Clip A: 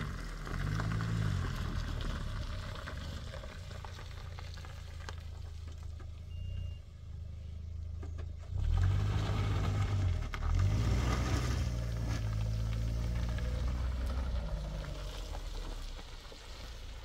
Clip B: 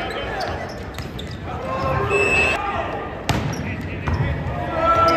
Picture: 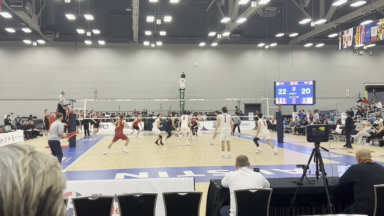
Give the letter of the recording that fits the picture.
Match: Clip B